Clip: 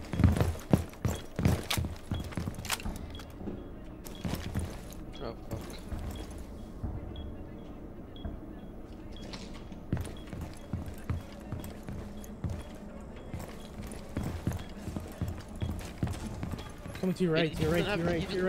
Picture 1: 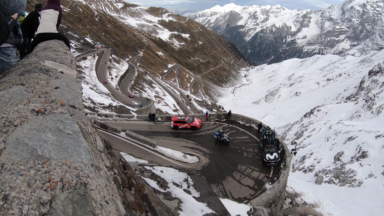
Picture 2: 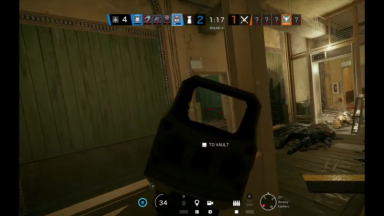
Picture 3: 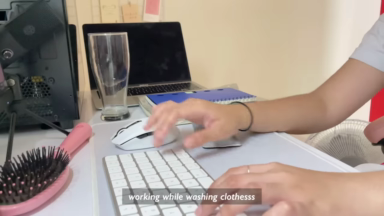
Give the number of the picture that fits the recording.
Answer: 2